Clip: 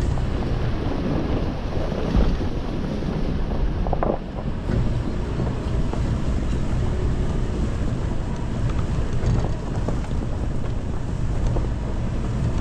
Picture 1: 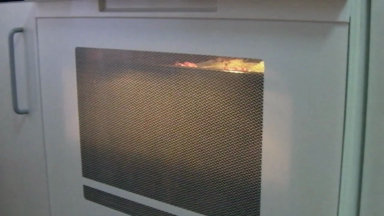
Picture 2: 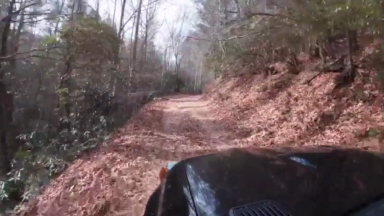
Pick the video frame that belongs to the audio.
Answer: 2